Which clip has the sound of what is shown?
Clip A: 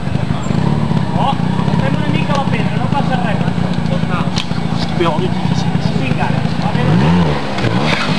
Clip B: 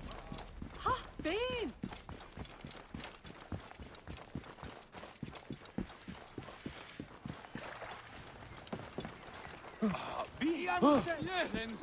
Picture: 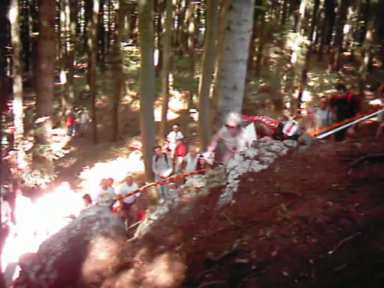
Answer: A